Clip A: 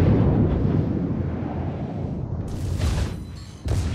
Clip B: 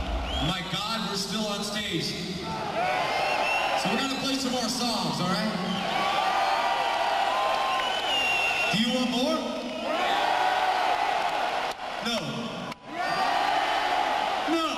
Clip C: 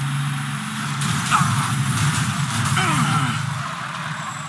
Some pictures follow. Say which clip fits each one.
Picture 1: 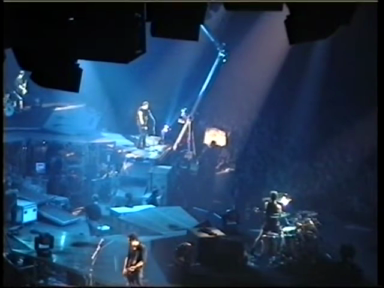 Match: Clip B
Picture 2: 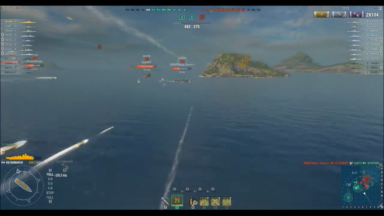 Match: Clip A